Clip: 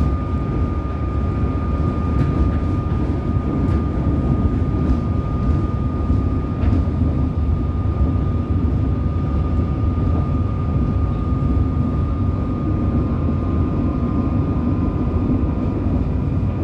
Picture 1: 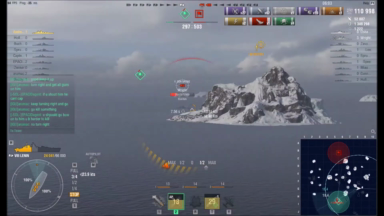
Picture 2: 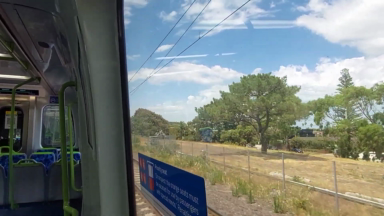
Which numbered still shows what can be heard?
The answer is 2